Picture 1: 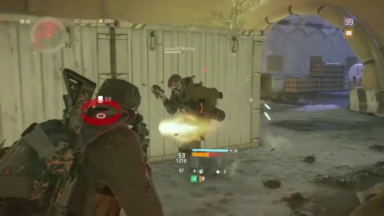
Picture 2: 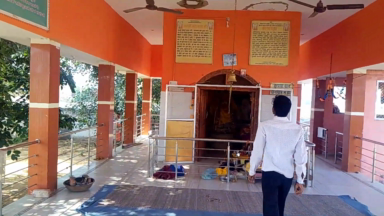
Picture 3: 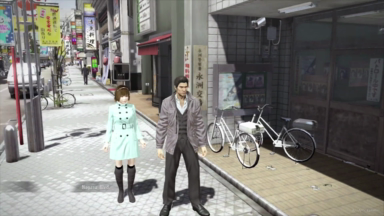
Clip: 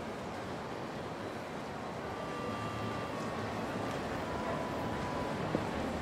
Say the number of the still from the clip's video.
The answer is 3